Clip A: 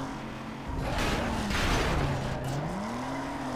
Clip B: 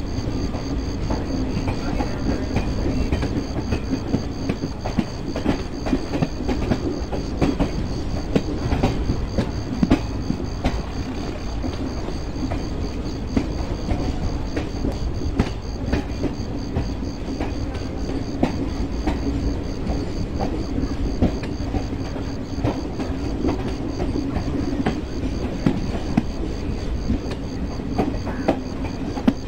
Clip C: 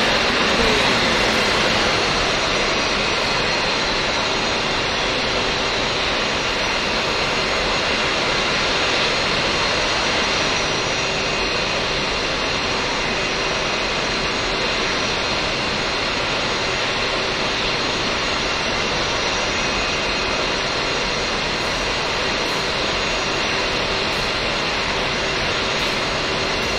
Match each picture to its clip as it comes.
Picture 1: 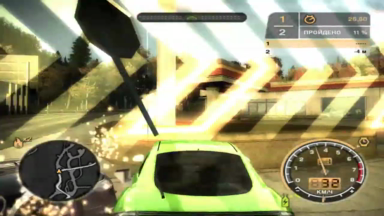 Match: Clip A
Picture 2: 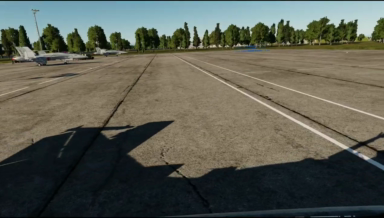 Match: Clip C